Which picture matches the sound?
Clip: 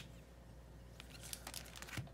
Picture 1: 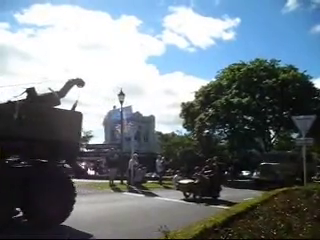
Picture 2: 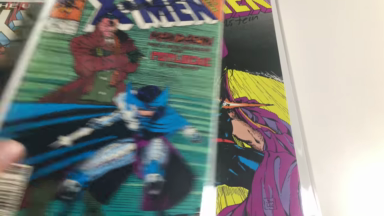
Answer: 2